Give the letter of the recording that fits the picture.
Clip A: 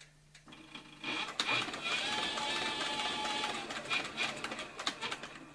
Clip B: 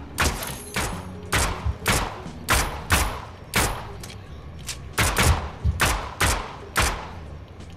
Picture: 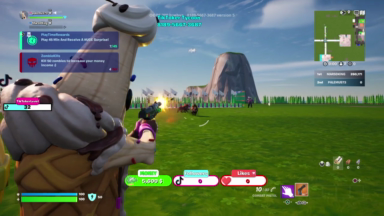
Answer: B